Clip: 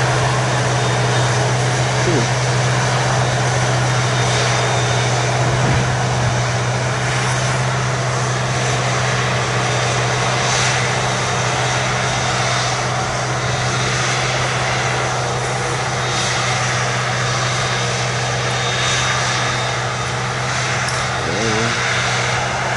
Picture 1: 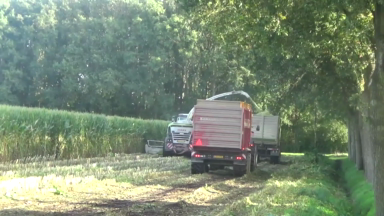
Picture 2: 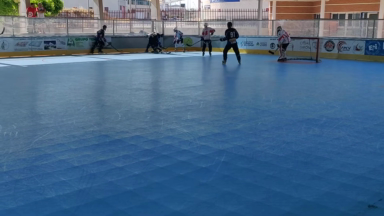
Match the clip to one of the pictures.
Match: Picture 1